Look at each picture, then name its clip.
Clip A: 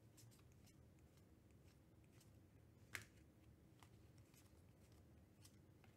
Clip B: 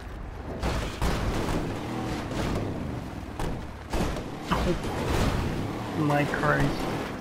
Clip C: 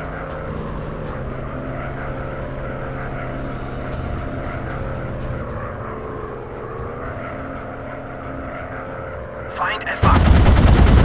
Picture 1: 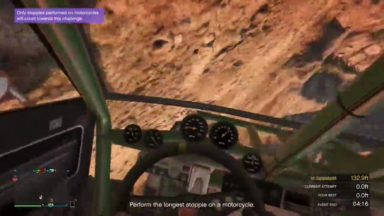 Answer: B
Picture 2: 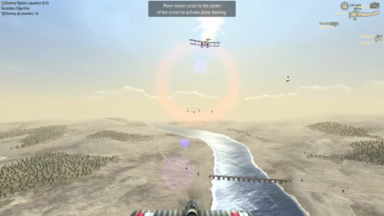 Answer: C